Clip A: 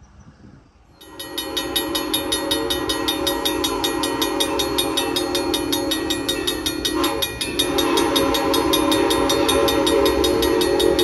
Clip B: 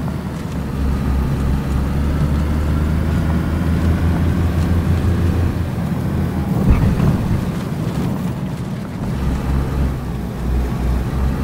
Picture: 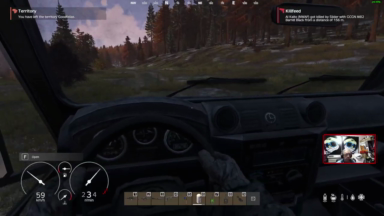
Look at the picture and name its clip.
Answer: B